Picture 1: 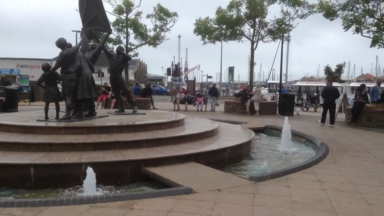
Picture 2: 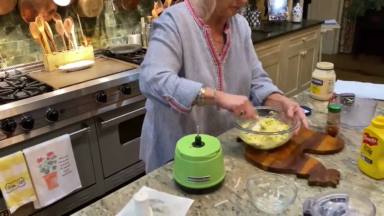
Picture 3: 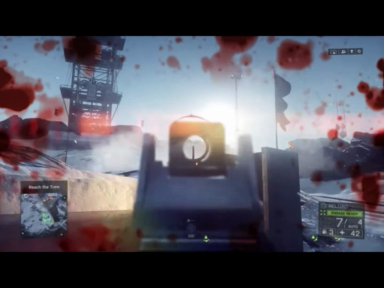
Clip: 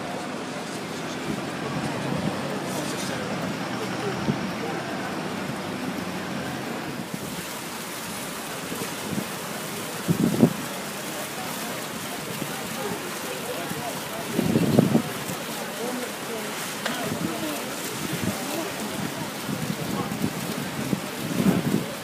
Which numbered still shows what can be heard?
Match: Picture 1